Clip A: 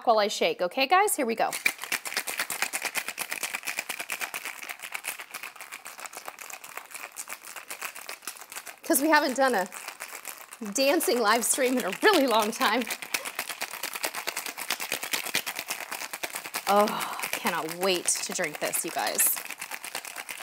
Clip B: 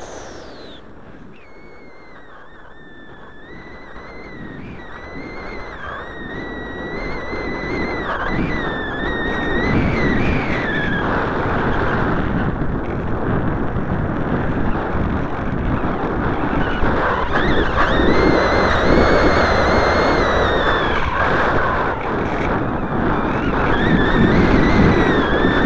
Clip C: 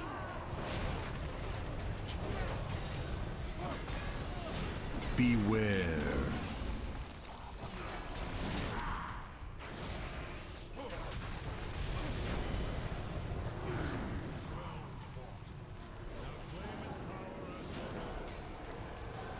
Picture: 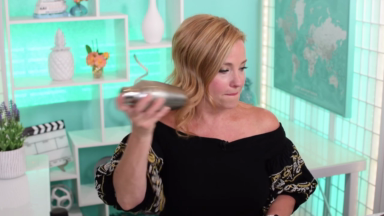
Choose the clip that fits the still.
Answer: A